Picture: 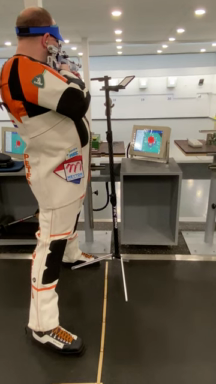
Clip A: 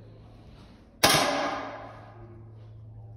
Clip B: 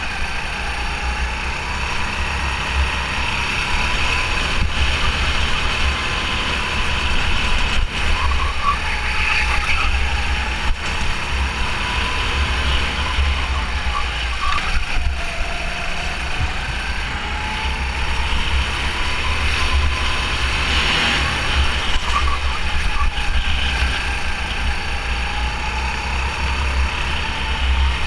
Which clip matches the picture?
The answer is A